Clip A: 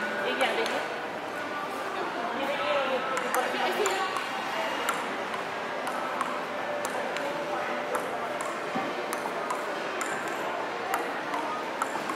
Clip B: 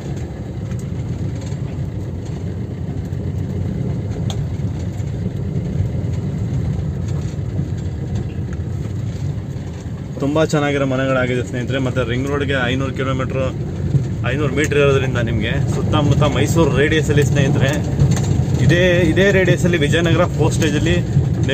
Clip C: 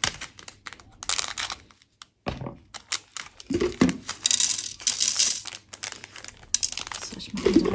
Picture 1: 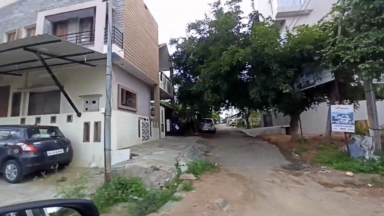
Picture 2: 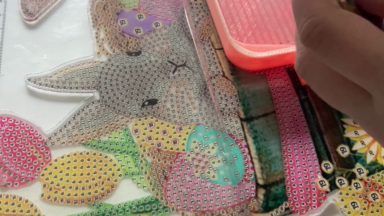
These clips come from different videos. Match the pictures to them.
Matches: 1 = B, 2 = C